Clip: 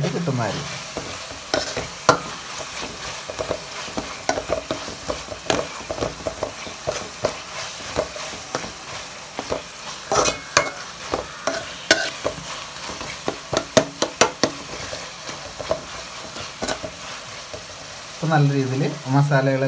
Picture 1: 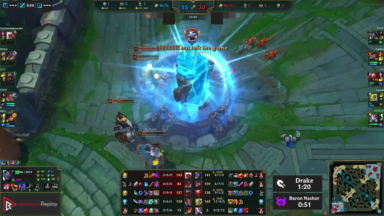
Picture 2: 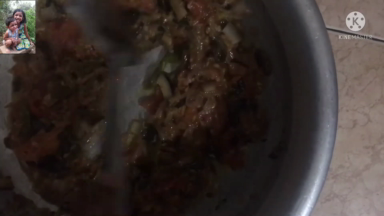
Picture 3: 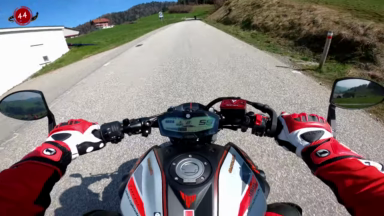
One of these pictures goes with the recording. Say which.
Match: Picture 2